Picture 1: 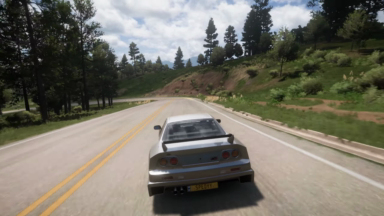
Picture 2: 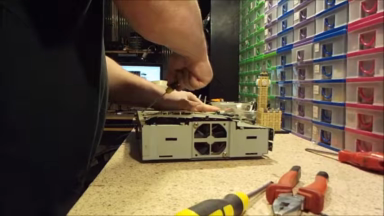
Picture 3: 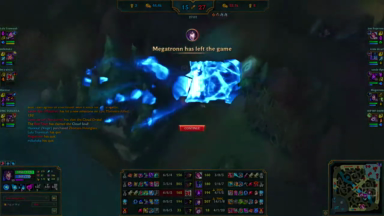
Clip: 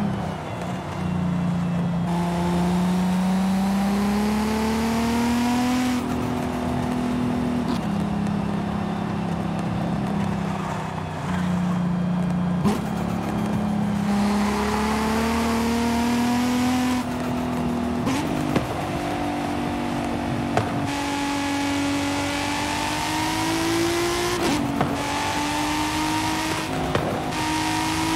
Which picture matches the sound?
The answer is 1